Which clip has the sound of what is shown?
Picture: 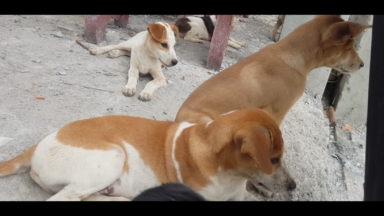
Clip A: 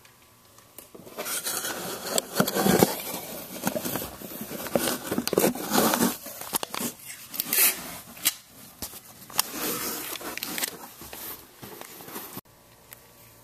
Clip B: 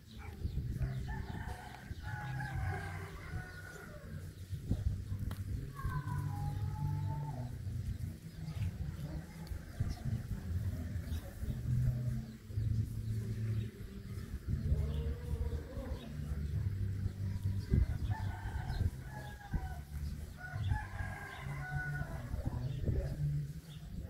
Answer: B